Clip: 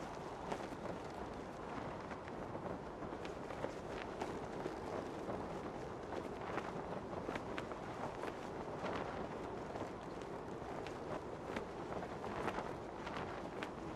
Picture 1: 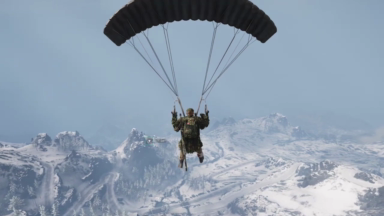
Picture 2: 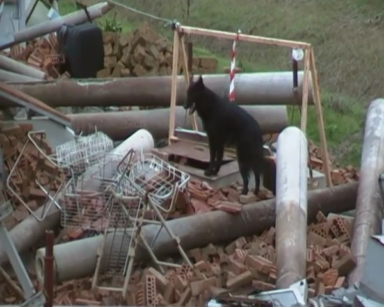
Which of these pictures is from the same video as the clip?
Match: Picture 1